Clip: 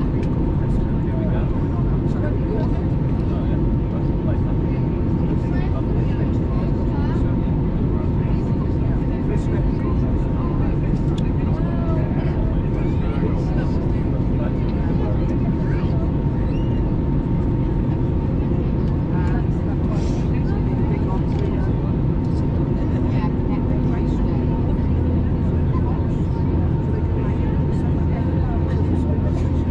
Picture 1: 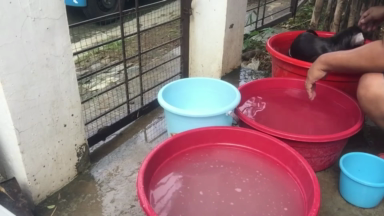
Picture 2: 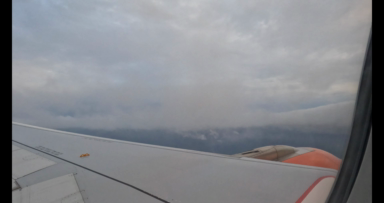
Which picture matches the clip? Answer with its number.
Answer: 2